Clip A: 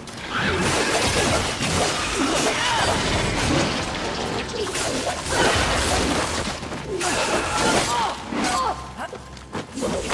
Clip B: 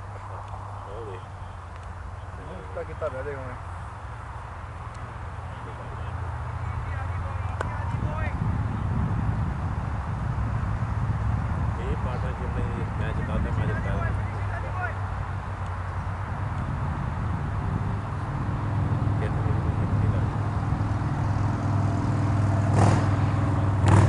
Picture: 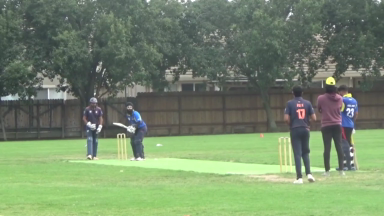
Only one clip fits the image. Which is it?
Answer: B